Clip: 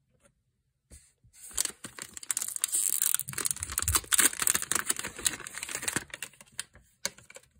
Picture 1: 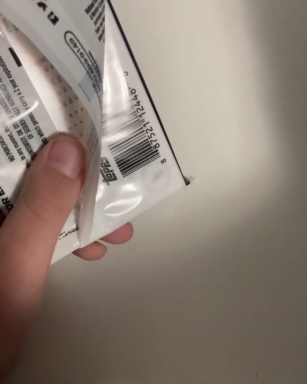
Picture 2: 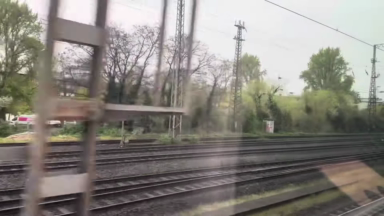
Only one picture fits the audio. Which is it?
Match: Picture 1